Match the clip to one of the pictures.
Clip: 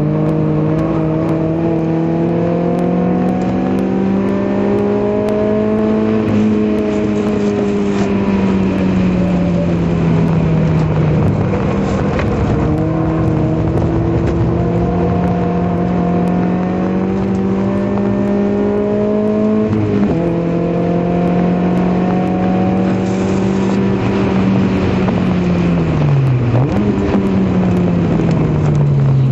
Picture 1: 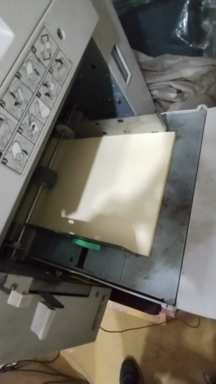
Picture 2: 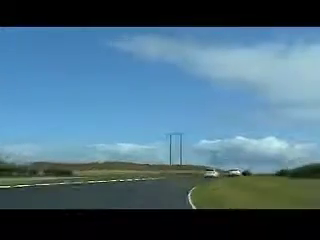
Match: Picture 2